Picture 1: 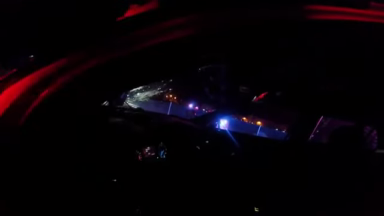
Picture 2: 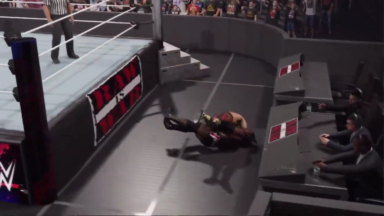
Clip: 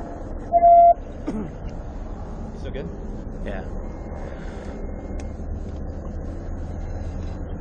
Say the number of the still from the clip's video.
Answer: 1